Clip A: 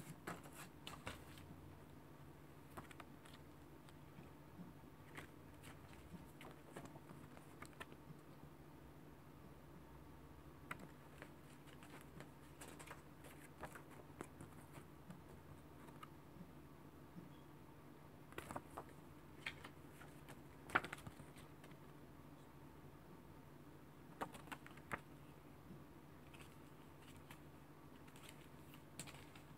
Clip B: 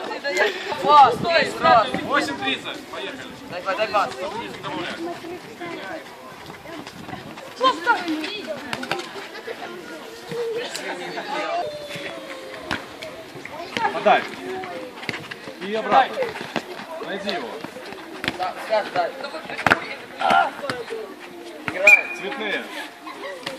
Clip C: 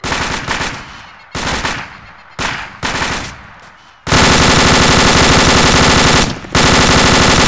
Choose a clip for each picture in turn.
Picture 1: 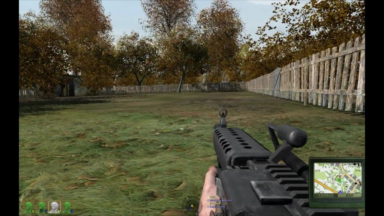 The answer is C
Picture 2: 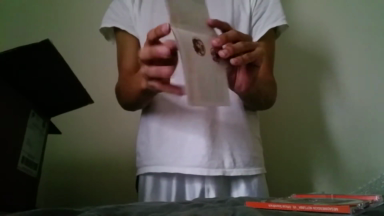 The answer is A